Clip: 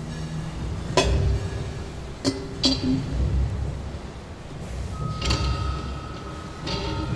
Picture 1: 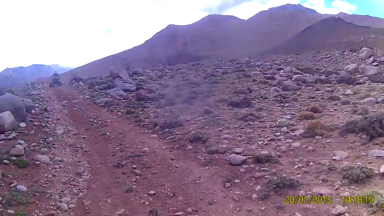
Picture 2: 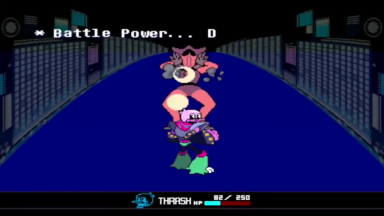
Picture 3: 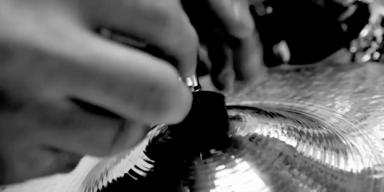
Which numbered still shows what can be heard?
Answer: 3